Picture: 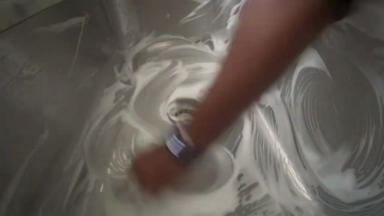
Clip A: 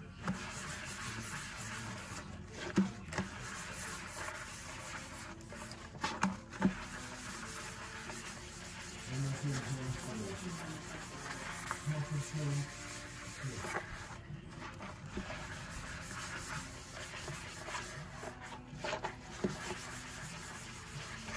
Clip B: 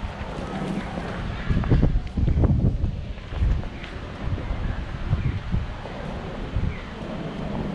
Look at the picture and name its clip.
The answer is A